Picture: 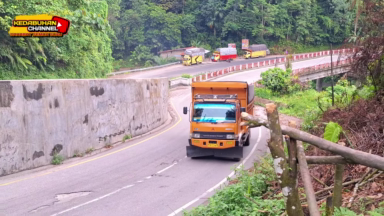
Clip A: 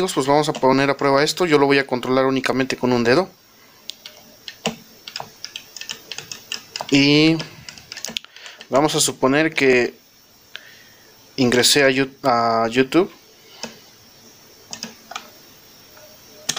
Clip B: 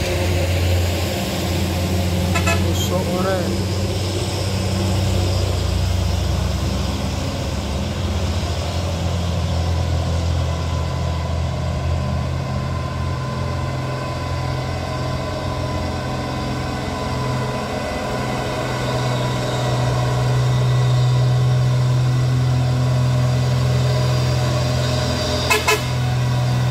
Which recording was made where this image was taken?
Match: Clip B